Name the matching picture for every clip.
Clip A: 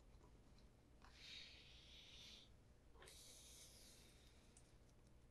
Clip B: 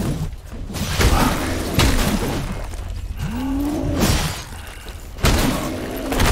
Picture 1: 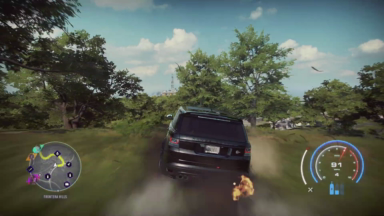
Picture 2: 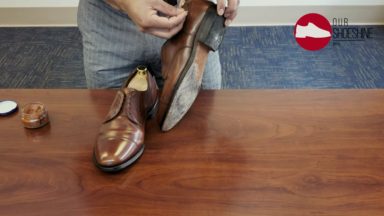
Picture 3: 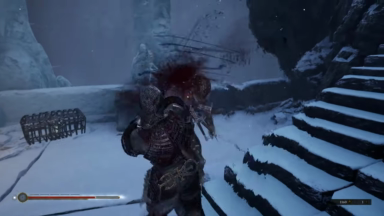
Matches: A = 2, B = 3